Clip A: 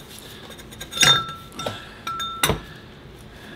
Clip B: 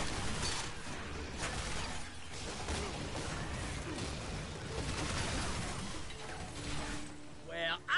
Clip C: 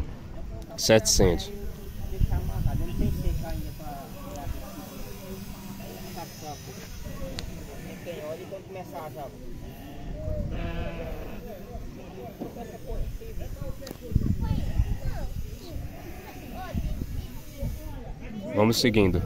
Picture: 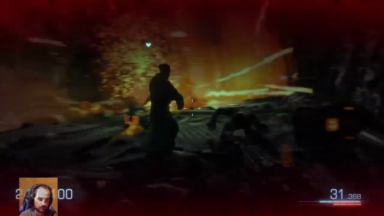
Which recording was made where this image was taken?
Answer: B